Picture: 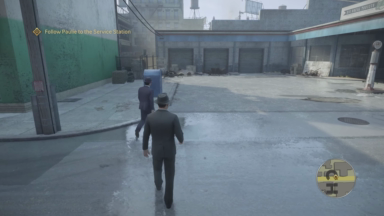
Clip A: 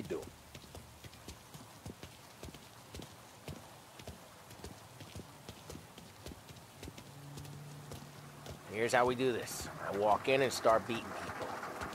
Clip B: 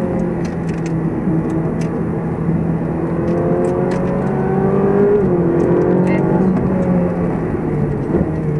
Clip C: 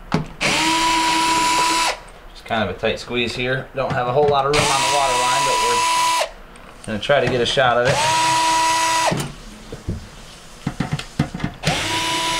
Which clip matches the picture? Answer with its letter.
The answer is A